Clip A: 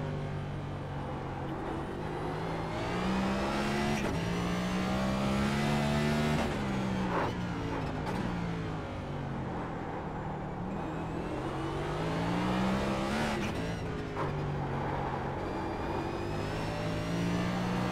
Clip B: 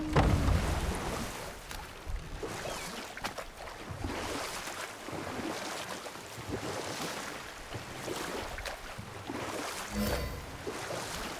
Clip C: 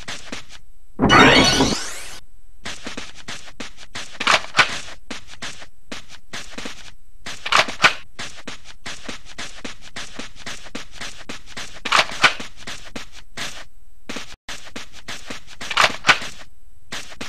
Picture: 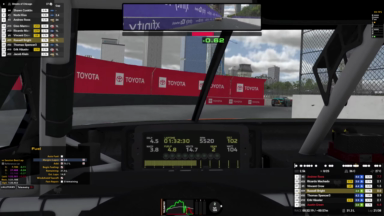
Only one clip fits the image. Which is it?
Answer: A